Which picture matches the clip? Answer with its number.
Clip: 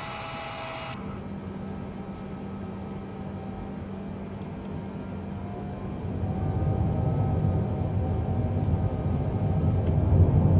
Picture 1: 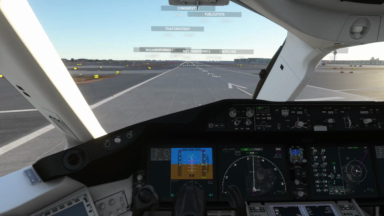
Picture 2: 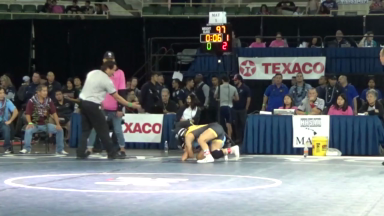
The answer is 1